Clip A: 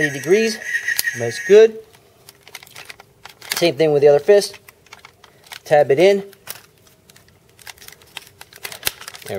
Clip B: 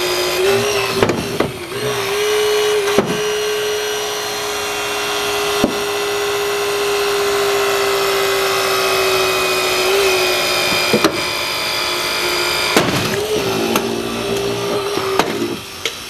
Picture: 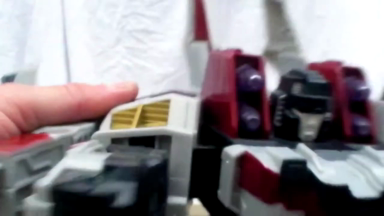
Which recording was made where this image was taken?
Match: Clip A